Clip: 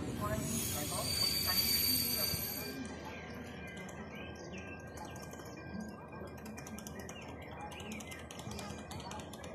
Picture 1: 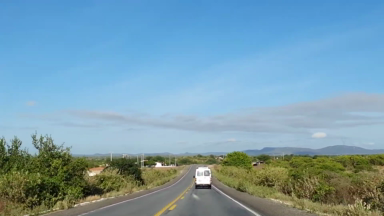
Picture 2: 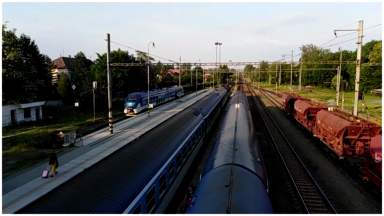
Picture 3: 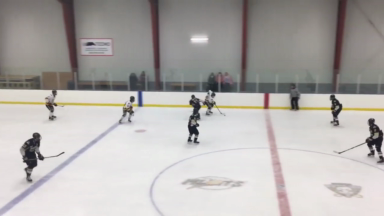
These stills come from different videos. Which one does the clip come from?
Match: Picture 2